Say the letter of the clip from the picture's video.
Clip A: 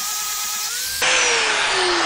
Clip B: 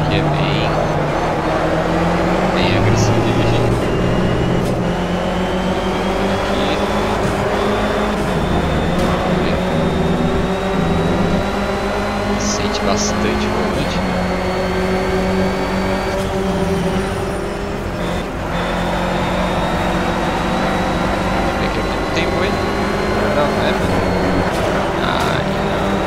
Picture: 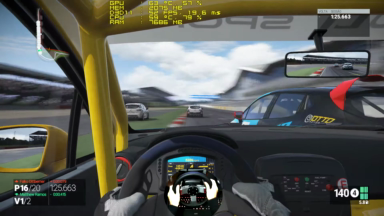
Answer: B